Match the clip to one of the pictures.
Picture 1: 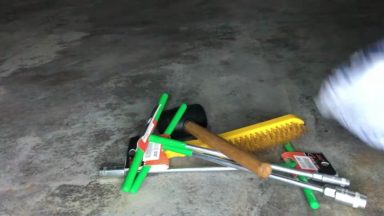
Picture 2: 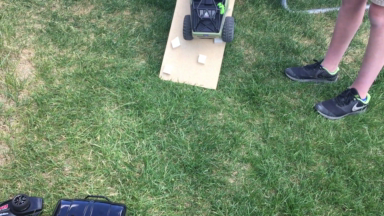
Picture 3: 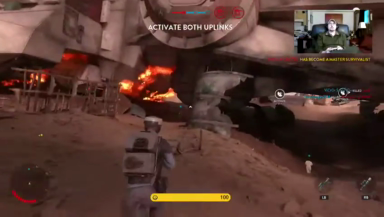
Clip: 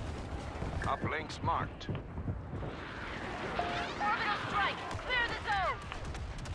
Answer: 3